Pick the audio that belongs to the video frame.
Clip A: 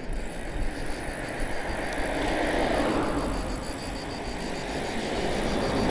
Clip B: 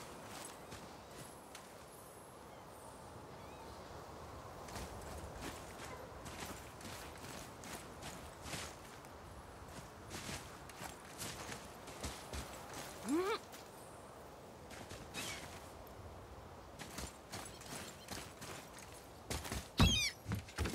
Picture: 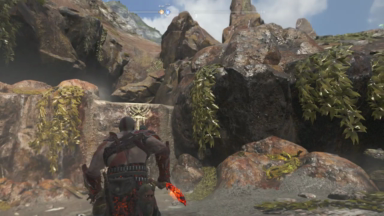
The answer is B